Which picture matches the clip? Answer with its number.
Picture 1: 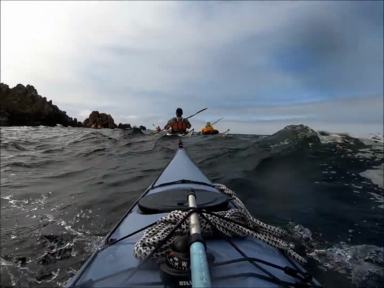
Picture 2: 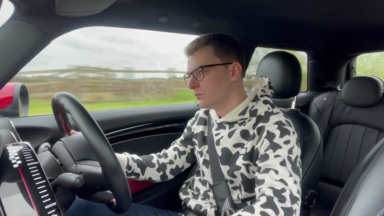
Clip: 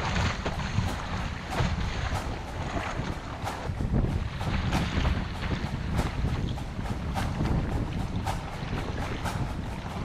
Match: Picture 1